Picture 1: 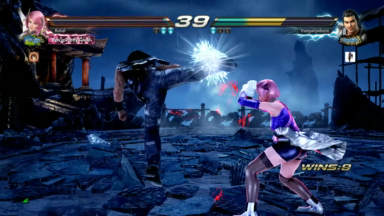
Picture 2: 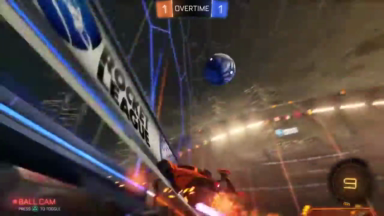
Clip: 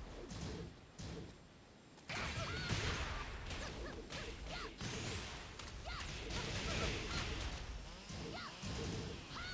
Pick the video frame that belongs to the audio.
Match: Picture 1